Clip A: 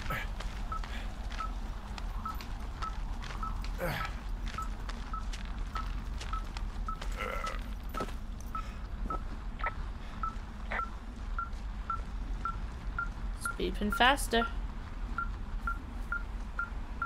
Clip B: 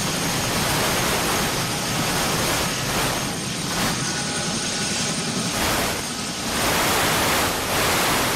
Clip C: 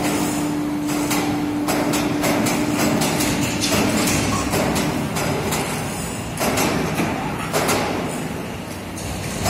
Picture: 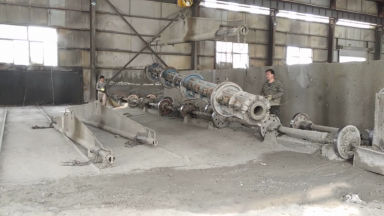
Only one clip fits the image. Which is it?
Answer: C